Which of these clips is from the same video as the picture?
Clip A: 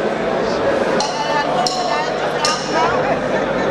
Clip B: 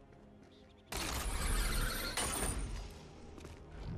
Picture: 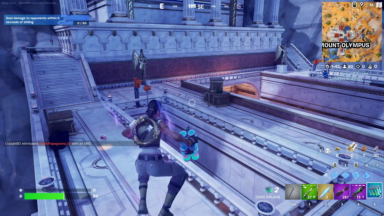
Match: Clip B